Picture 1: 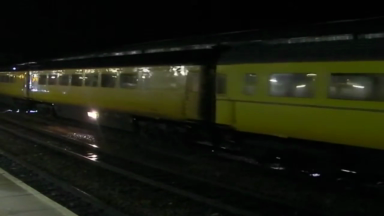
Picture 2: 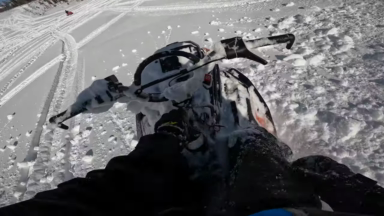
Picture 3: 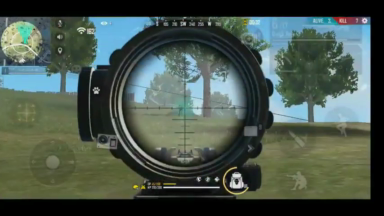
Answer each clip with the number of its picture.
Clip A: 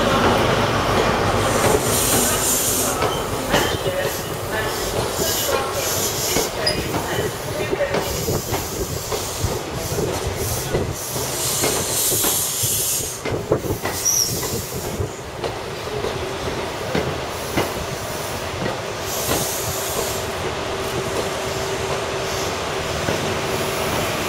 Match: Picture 1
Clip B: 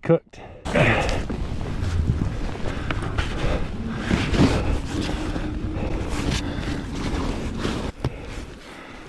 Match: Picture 2